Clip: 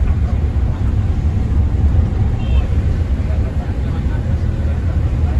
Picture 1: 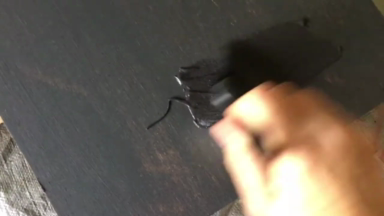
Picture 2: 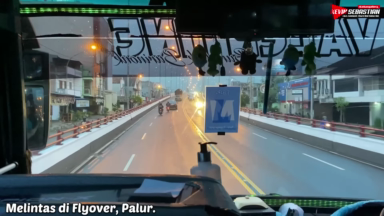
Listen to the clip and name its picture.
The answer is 2